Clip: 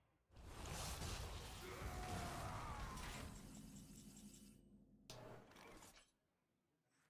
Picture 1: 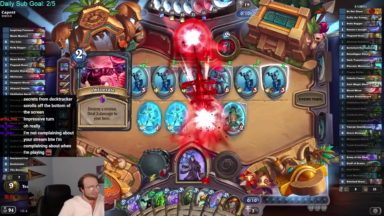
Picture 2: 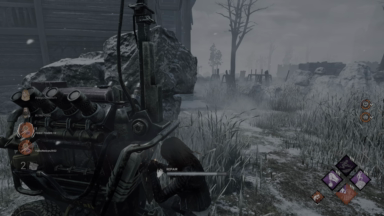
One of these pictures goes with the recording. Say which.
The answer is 1